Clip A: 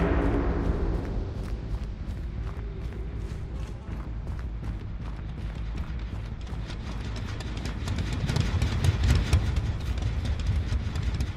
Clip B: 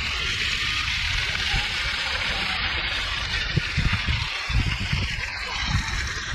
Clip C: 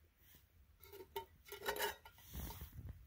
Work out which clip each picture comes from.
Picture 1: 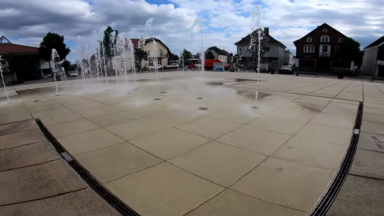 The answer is B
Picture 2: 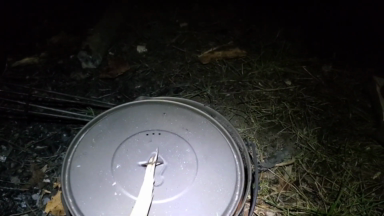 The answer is C